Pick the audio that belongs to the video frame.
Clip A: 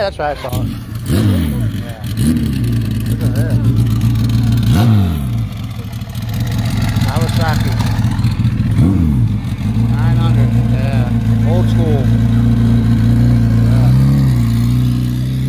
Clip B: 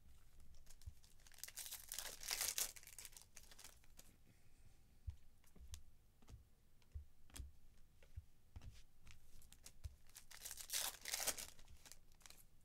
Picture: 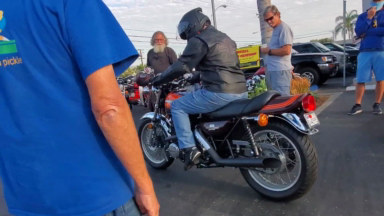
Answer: A